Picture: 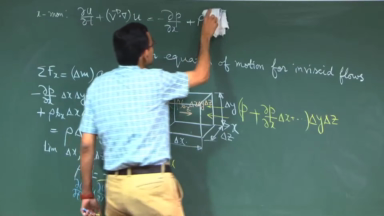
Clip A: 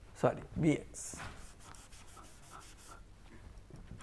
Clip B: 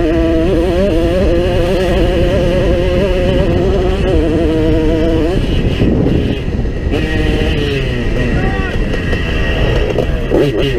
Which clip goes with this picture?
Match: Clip A